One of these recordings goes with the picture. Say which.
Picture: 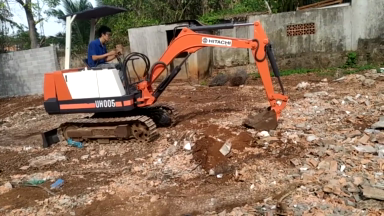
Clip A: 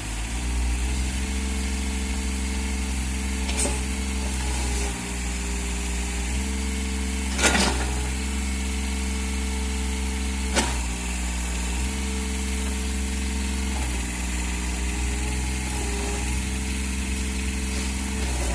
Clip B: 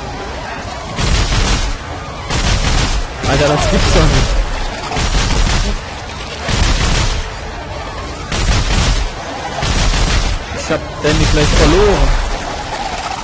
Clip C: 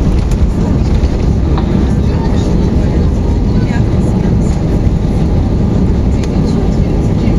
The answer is A